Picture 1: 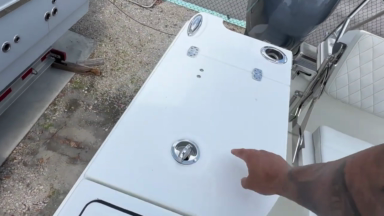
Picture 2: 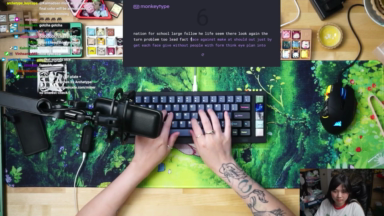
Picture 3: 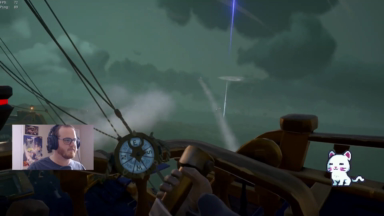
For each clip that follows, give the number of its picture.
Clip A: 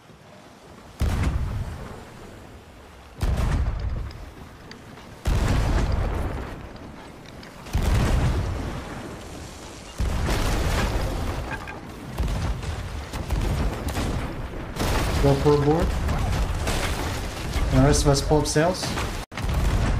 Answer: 3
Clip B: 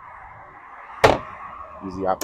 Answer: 1